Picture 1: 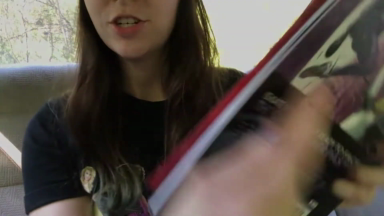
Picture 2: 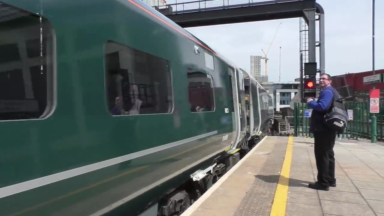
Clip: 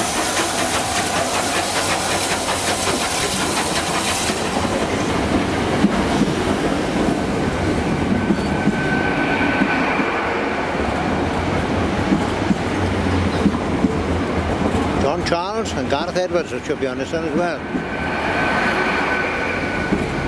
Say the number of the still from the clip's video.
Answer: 2